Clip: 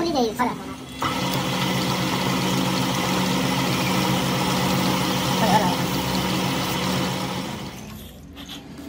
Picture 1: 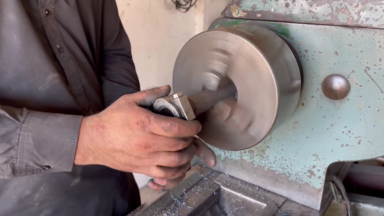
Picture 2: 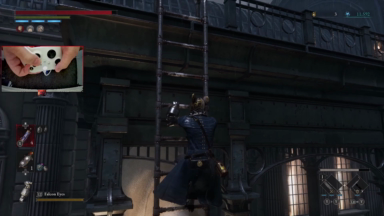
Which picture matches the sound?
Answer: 1